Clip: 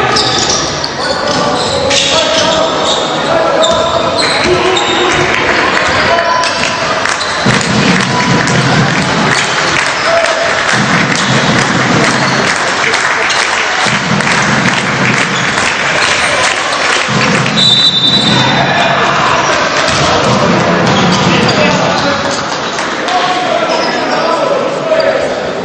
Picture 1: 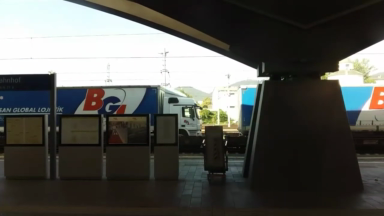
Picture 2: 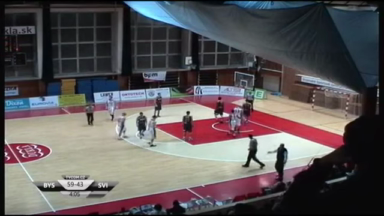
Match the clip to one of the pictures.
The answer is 2